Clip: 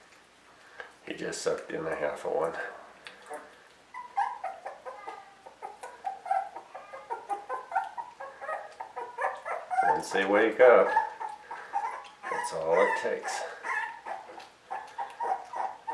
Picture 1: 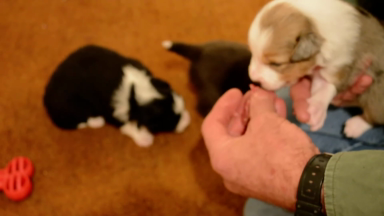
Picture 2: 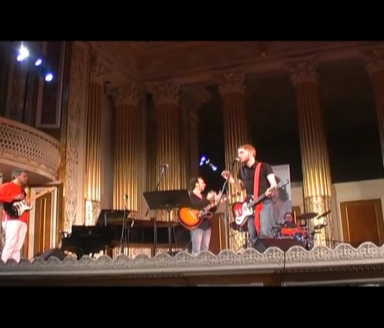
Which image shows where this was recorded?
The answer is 1